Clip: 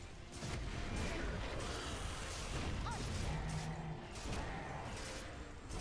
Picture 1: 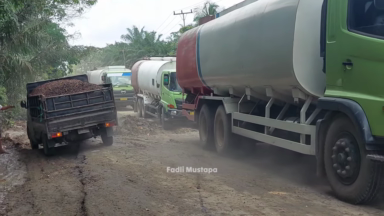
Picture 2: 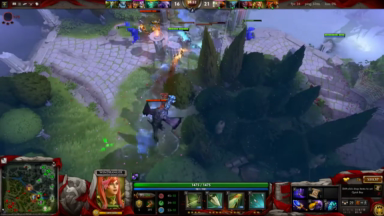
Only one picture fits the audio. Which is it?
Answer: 2